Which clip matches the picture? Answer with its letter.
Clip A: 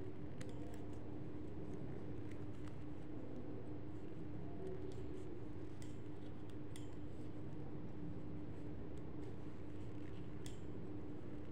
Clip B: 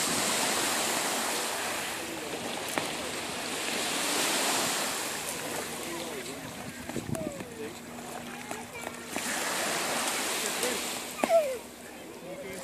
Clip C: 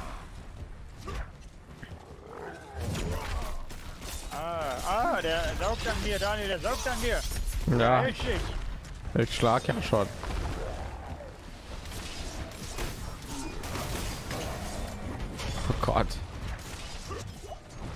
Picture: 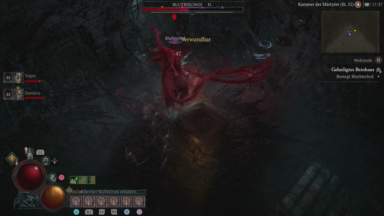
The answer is C